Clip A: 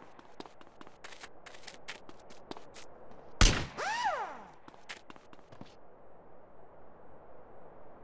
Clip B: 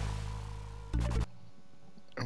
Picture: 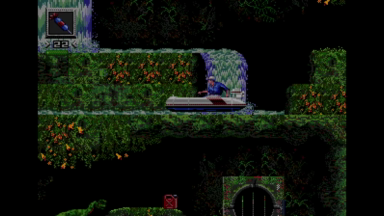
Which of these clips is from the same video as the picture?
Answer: B